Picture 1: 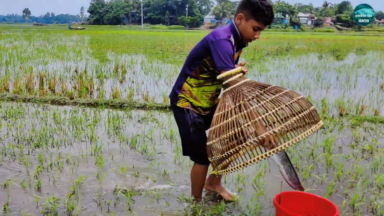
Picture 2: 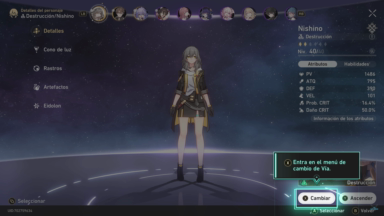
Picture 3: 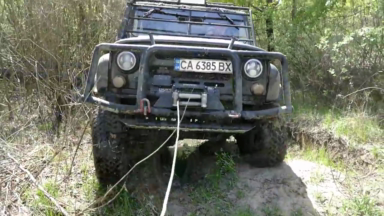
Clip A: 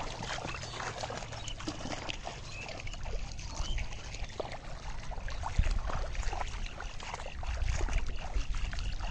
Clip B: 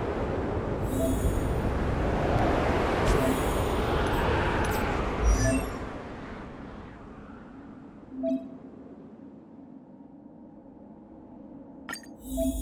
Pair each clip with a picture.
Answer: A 1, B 2